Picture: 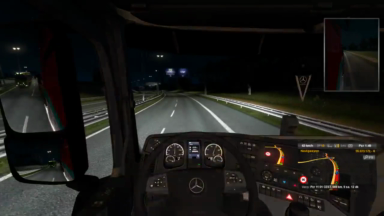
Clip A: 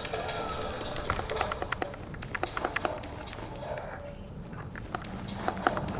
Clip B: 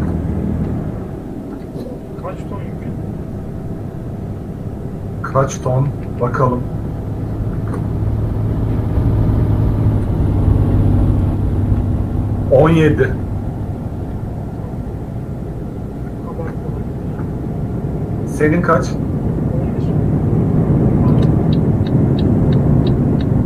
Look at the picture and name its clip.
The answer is B